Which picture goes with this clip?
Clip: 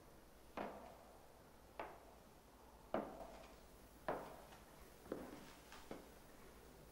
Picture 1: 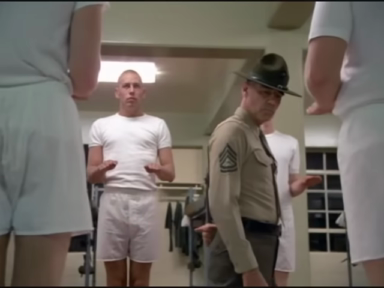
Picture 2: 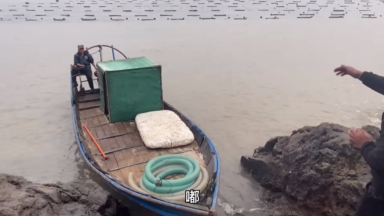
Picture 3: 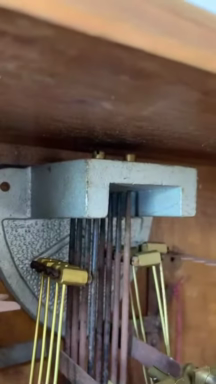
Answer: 1